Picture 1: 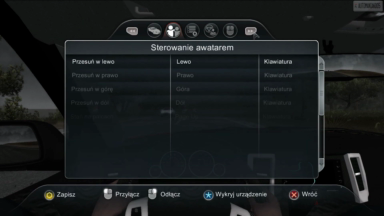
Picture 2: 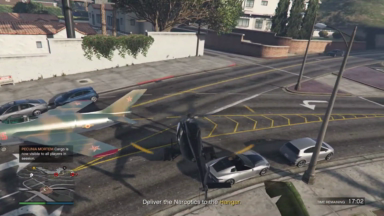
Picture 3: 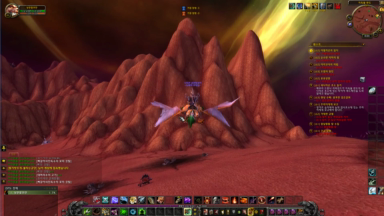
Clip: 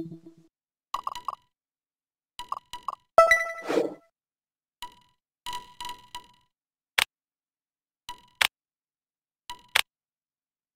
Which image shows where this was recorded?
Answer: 1